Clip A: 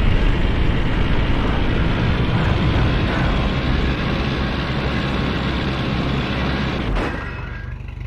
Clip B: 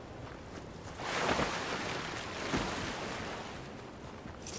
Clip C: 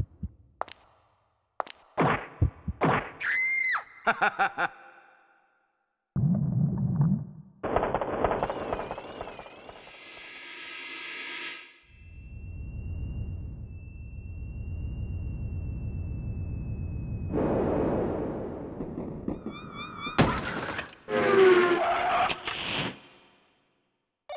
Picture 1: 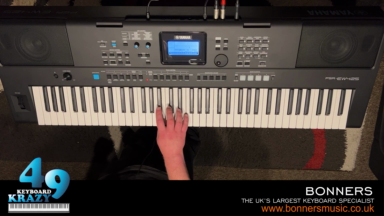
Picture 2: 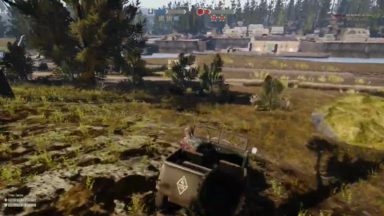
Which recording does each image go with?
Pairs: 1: C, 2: A